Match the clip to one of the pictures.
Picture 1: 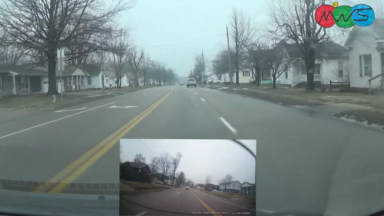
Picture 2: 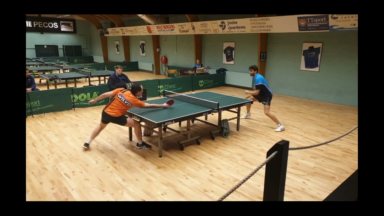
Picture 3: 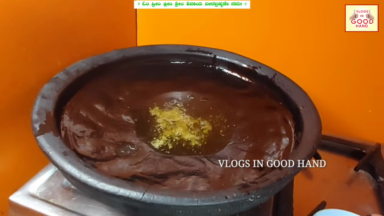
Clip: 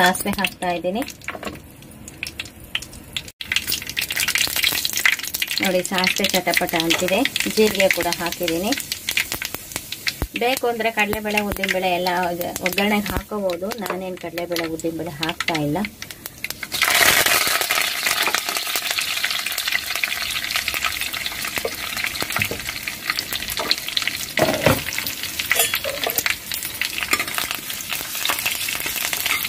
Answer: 3